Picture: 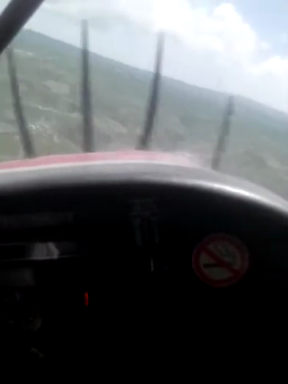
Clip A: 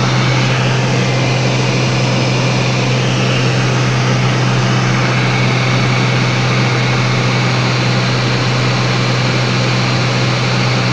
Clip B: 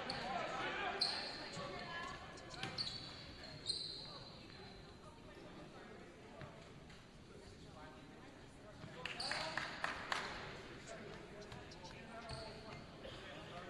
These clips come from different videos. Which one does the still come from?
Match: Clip A